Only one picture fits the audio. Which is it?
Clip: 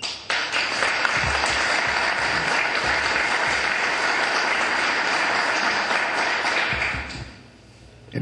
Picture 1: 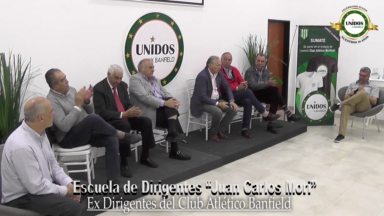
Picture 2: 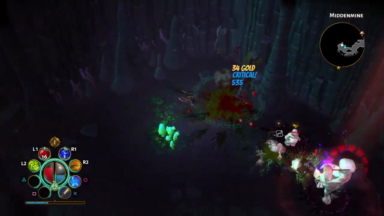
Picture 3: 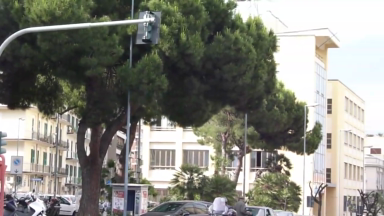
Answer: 1